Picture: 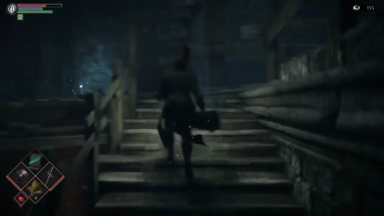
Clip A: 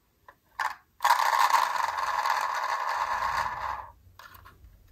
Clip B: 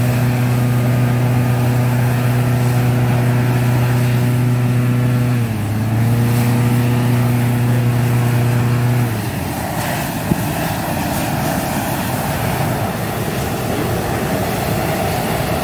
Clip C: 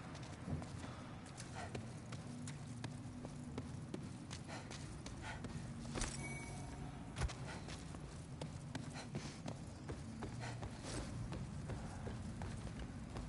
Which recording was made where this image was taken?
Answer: C